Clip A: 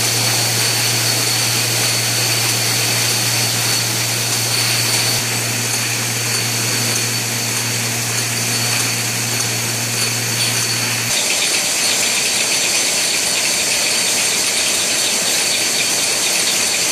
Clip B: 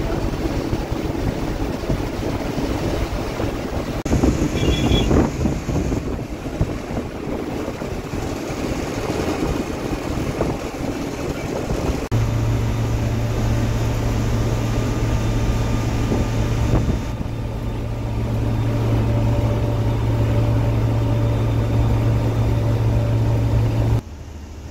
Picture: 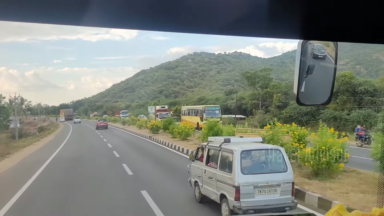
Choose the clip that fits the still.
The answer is B